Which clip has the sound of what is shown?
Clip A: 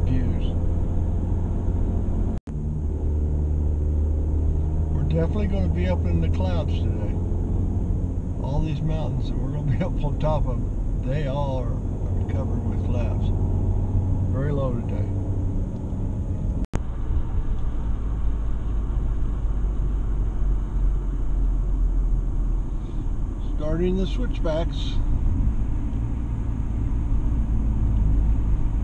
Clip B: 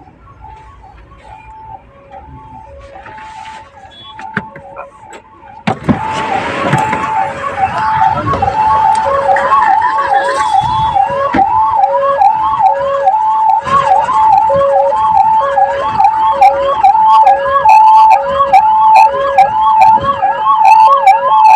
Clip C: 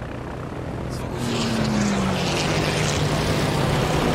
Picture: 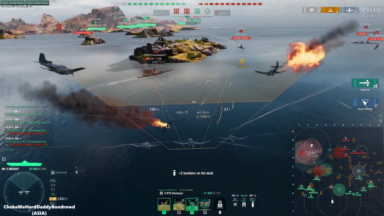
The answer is C